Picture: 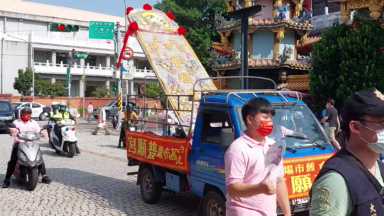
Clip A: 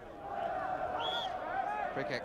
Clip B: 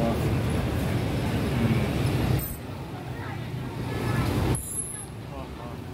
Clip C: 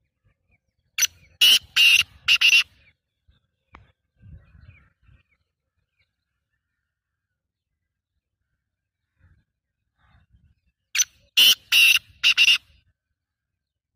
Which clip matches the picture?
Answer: B